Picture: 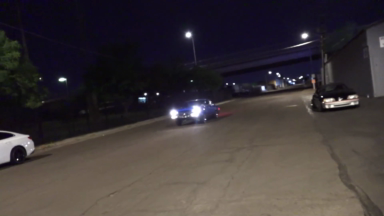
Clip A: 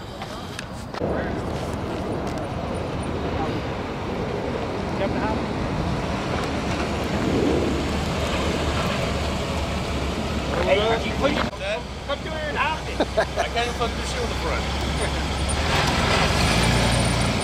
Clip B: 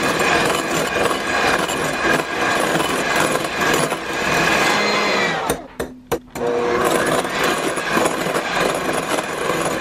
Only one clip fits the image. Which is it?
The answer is A